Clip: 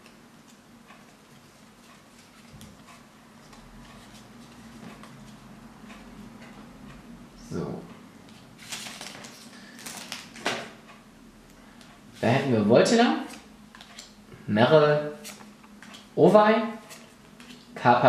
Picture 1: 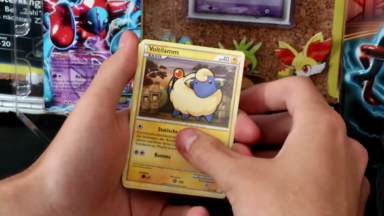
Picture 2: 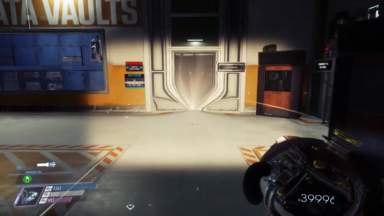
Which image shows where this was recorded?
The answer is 1